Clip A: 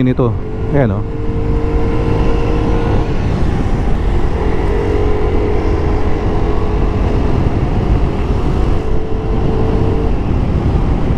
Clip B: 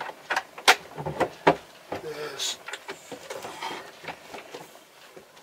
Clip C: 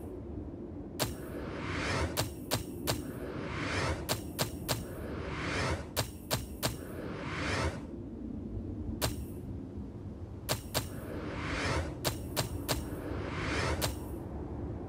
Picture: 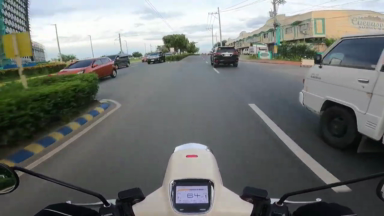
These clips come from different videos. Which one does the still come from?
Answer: A